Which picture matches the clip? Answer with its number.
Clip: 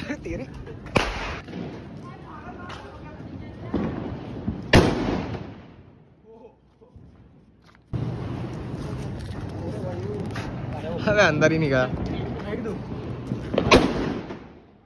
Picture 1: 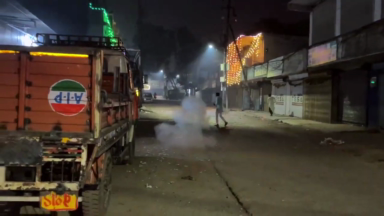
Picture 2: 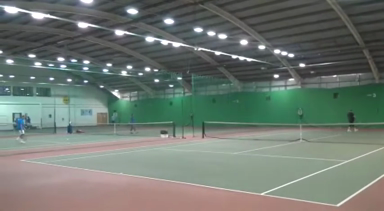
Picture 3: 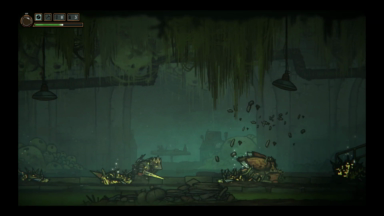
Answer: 1